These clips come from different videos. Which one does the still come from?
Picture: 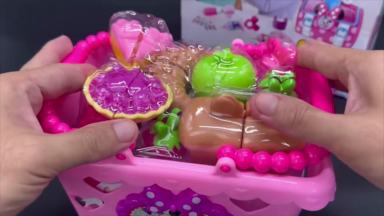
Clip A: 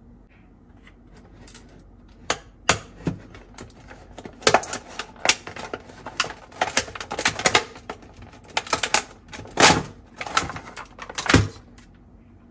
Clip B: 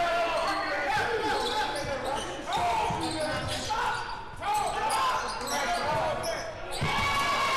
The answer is A